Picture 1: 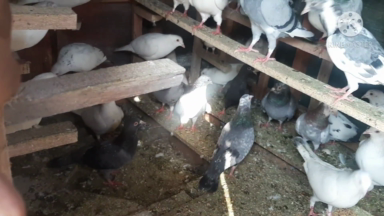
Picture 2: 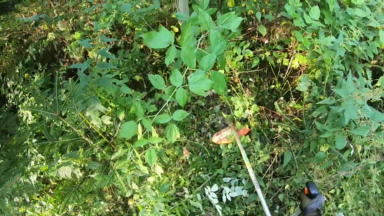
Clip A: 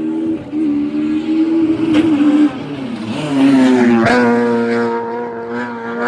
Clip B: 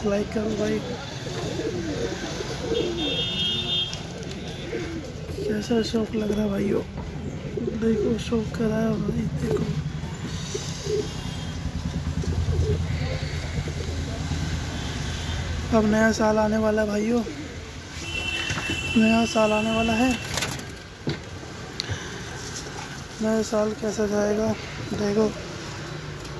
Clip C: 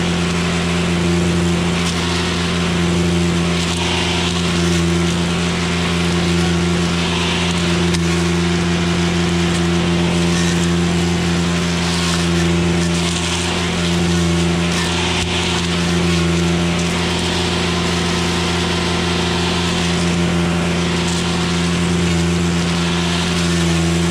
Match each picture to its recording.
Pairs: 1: B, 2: C